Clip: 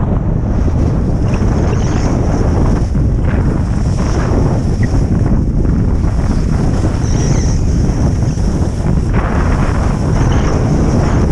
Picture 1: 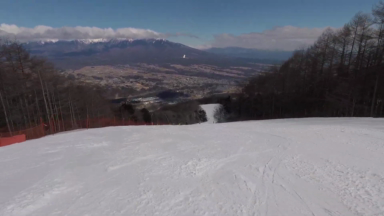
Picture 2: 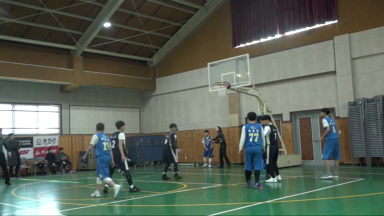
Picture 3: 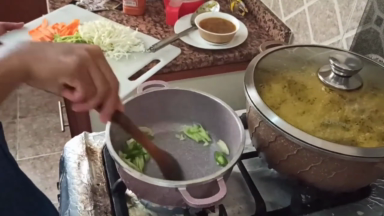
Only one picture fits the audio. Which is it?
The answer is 1